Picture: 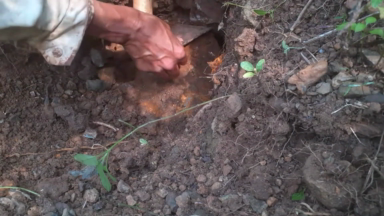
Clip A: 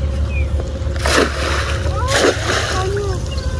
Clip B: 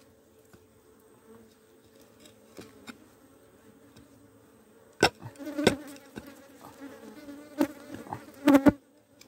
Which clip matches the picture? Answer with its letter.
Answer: B